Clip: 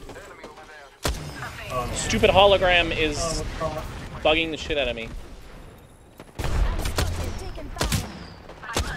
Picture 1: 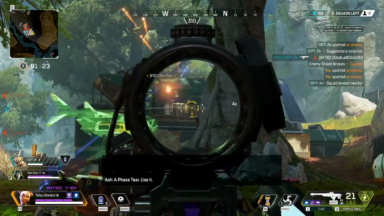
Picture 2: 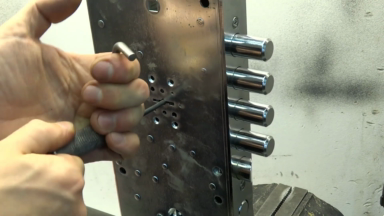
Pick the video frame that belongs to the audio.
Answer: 1